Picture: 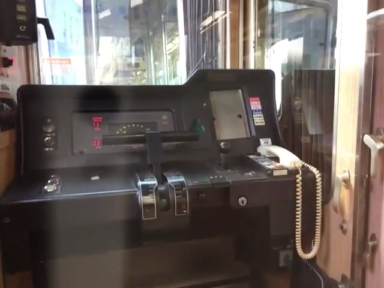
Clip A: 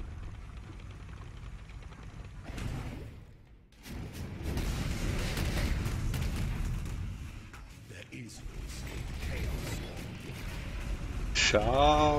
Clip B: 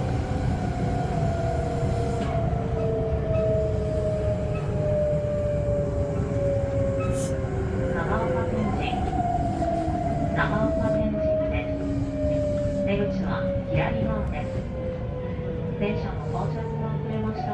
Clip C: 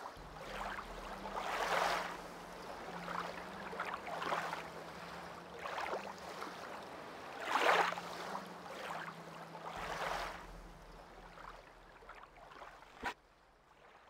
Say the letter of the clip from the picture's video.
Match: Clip B